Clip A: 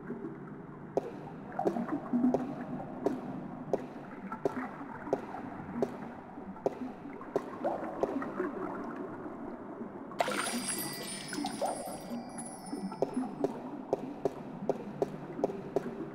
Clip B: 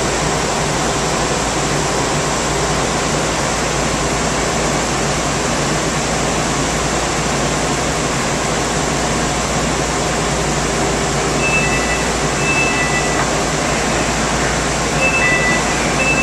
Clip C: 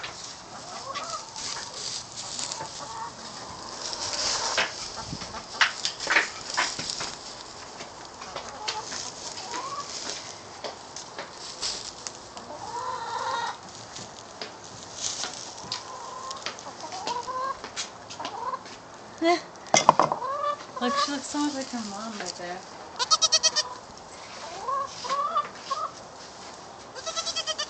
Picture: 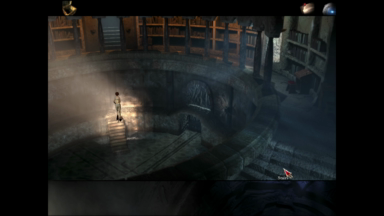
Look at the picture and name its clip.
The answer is A